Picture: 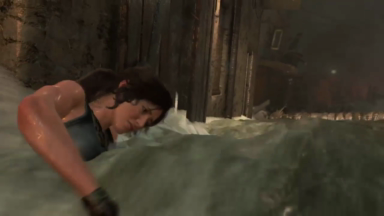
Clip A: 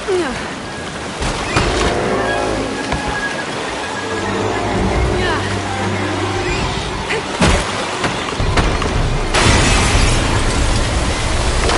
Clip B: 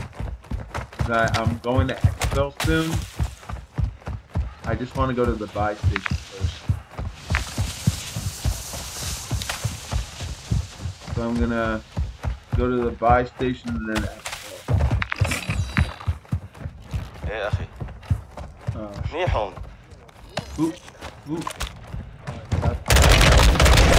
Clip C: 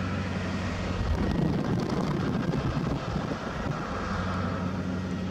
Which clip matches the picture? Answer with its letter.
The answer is A